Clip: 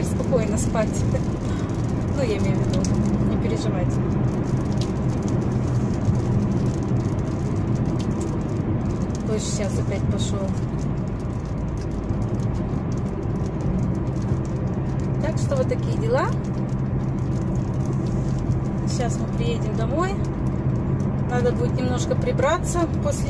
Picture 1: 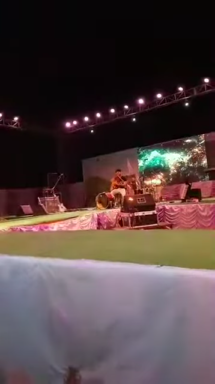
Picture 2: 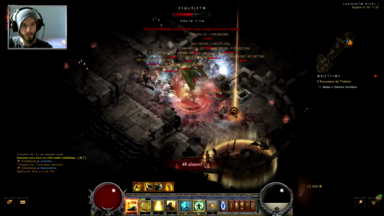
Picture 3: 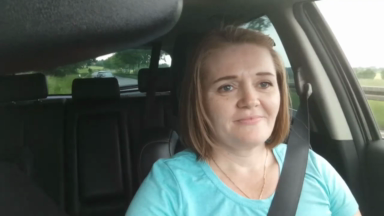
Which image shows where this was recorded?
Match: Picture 3